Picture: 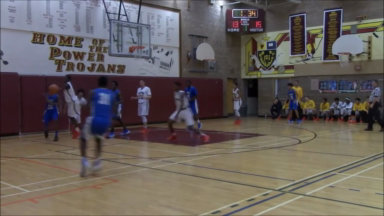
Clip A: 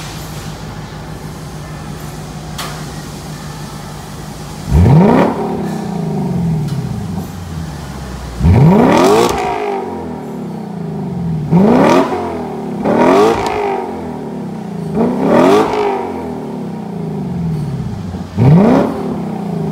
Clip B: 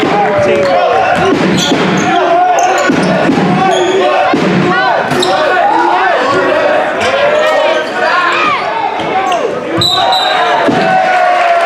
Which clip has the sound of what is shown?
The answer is B